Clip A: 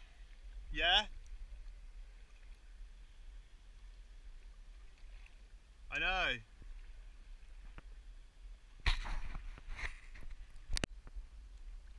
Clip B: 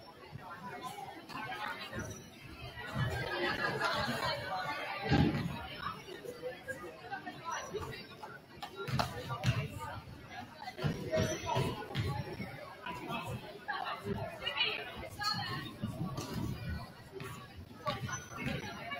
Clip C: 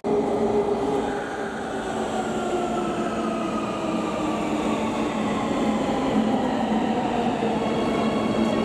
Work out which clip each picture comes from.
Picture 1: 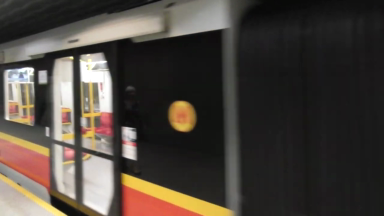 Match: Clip C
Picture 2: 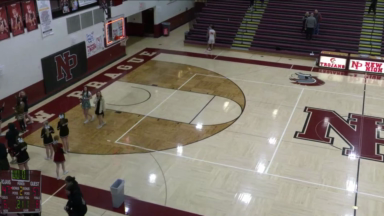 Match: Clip B